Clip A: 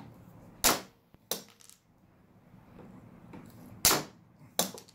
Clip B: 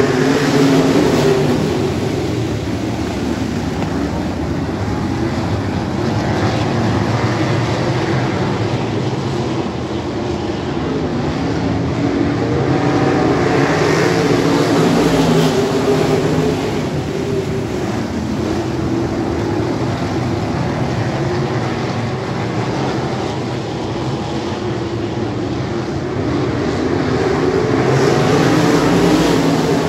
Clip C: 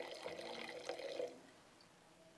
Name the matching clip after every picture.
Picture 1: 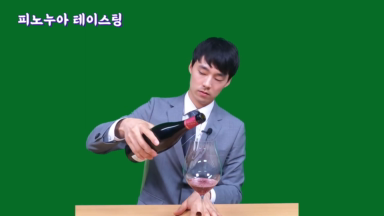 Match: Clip C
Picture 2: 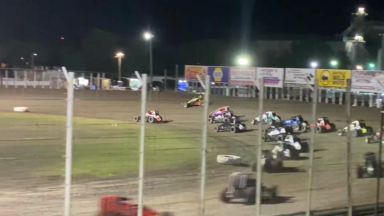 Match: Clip B